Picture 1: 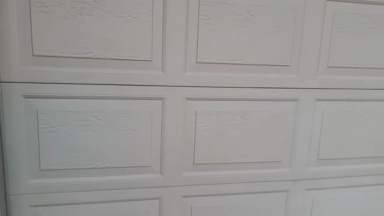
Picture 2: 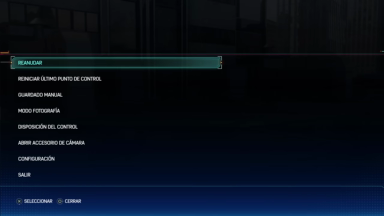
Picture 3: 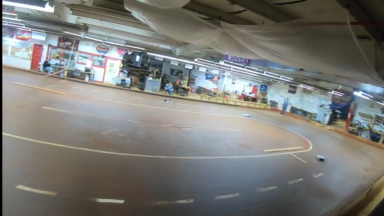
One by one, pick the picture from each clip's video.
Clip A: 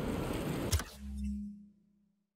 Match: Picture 2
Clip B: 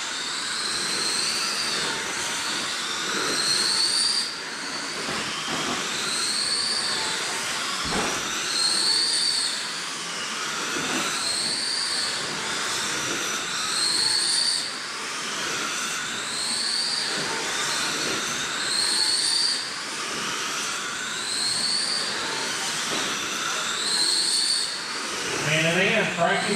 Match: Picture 3